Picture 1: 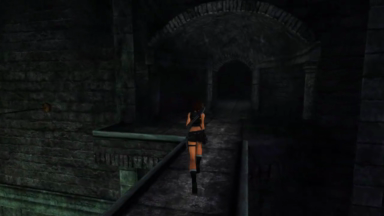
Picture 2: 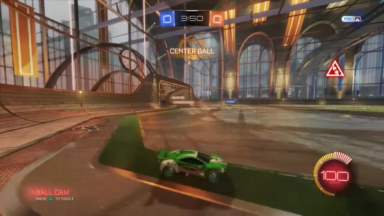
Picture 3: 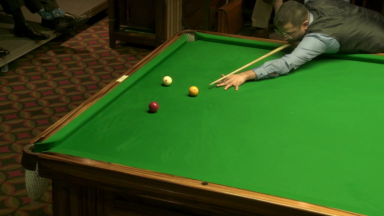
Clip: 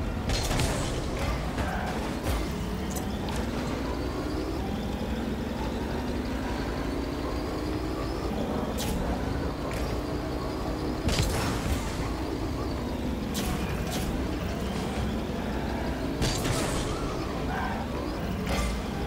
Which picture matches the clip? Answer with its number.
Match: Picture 2